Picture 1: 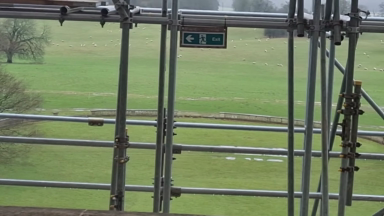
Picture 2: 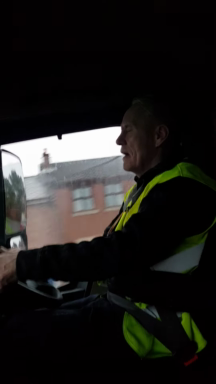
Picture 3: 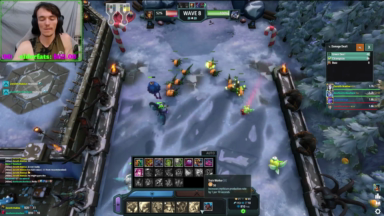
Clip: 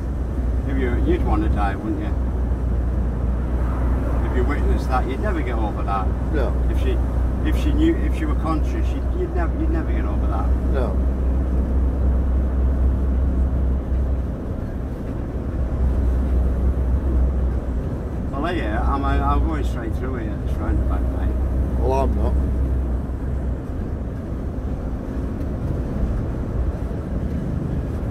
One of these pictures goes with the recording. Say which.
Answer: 2